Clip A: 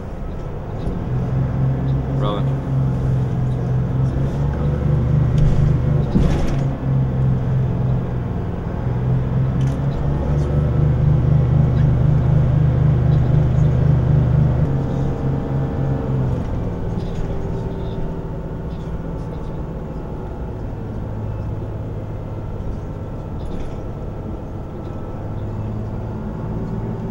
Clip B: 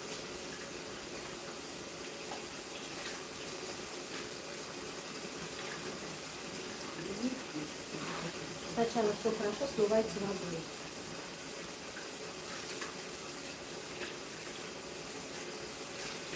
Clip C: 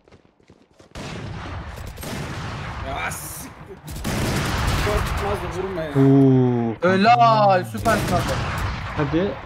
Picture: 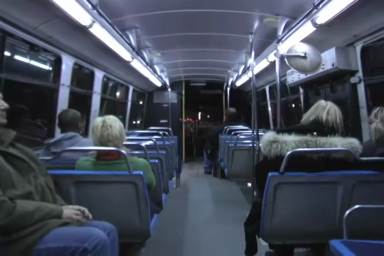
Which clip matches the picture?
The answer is A